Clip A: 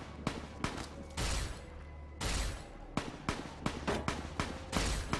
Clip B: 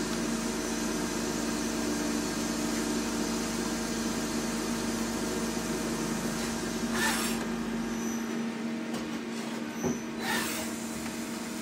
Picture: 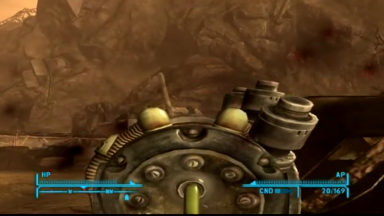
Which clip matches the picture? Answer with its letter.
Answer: A